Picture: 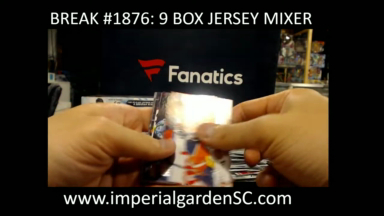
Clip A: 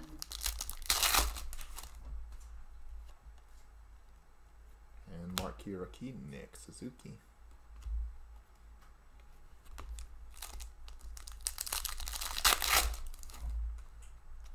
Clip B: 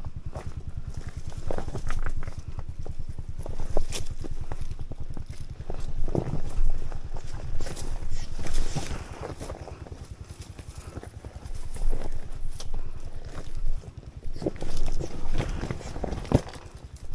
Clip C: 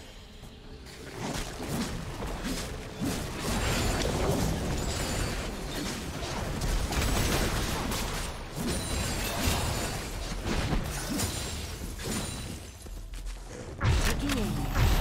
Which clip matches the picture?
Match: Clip A